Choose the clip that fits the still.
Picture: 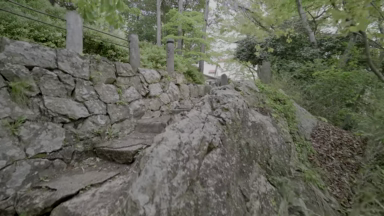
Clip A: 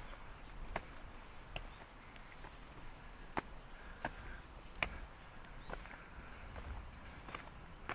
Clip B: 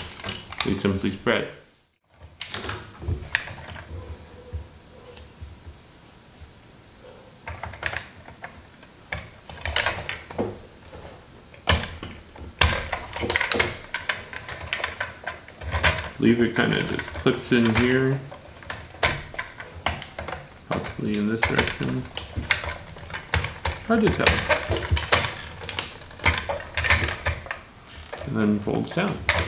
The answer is A